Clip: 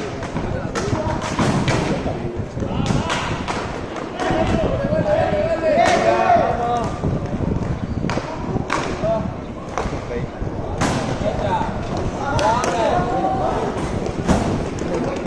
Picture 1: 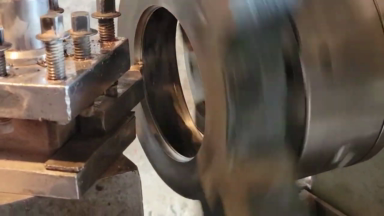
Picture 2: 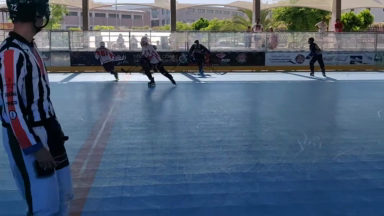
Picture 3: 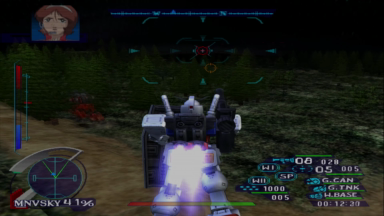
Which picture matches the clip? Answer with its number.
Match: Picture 2